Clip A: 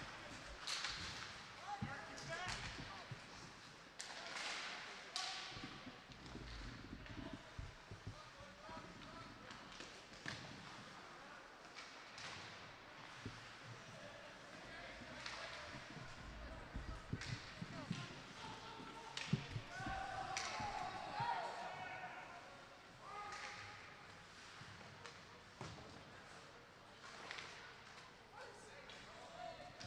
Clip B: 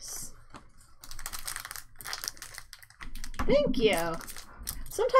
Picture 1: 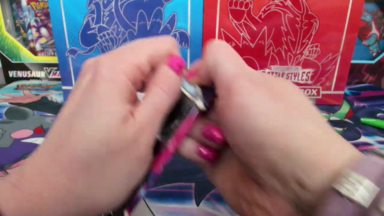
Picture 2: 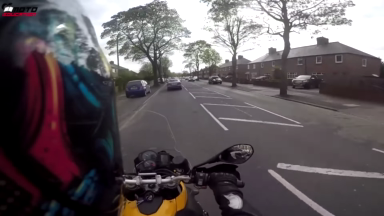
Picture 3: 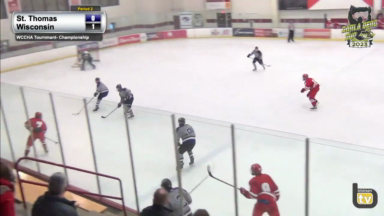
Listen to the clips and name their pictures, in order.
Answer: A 3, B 1